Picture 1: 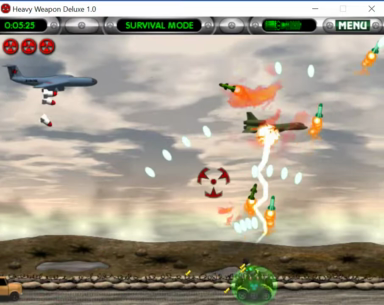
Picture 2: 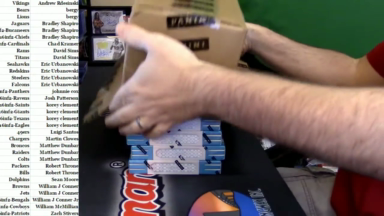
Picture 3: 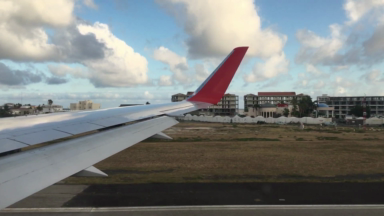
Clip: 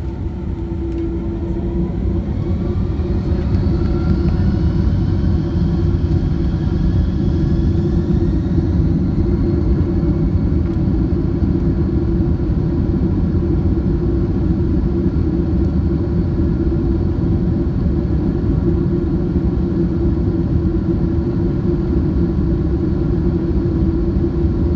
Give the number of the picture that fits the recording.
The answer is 3